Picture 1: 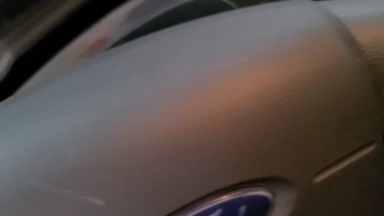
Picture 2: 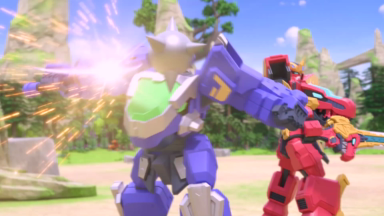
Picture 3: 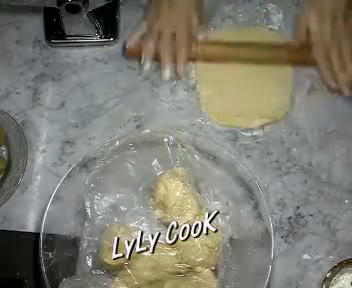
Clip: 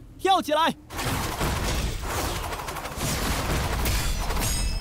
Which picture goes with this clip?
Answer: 2